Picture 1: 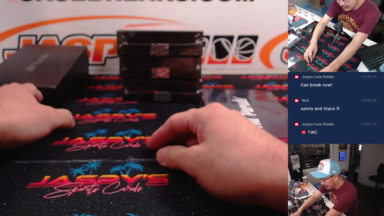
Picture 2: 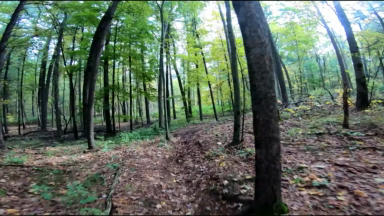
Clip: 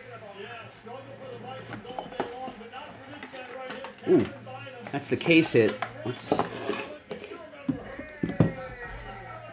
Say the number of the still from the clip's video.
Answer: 1